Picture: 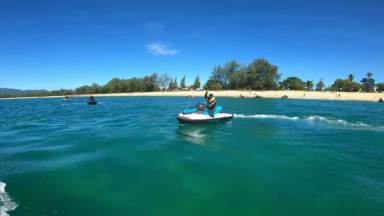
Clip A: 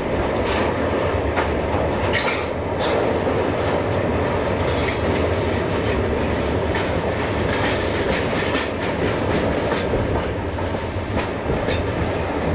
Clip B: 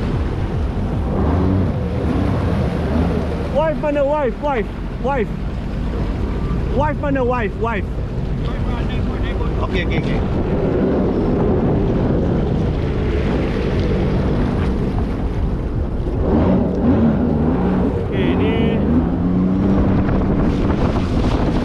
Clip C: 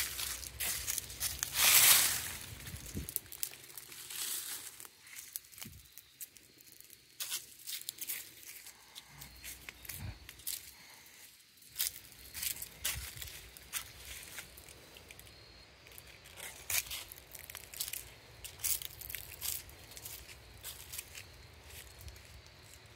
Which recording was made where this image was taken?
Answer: B